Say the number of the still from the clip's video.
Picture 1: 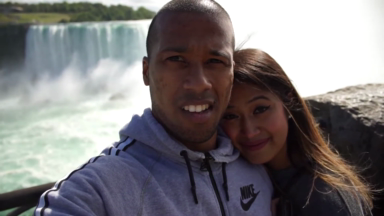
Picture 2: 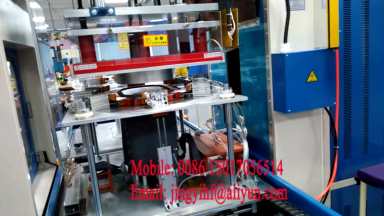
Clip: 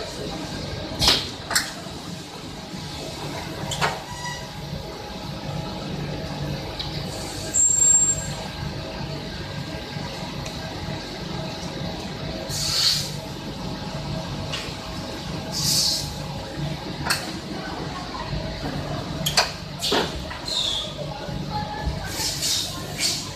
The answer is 2